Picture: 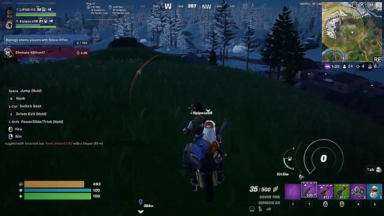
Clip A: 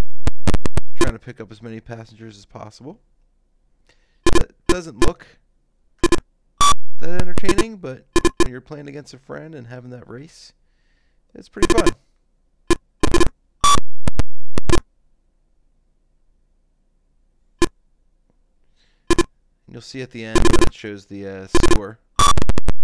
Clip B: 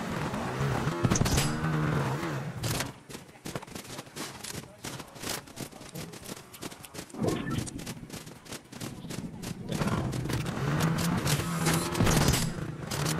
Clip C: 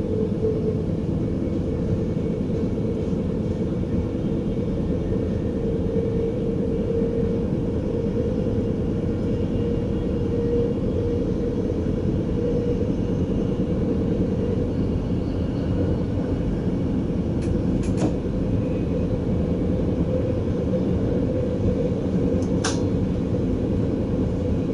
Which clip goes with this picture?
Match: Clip B